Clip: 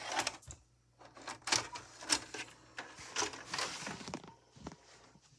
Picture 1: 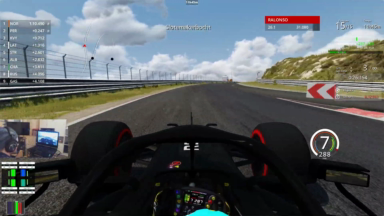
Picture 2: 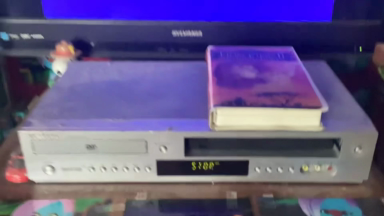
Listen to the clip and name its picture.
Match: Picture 2